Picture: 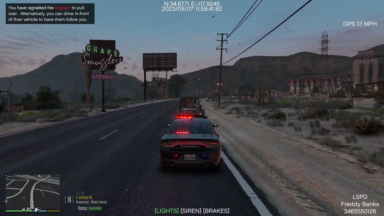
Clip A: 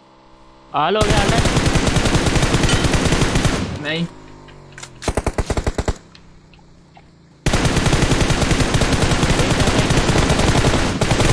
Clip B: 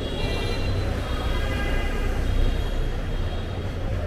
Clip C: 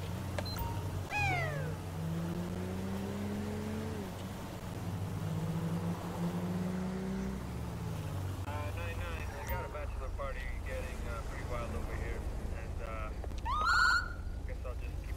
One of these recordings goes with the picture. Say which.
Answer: C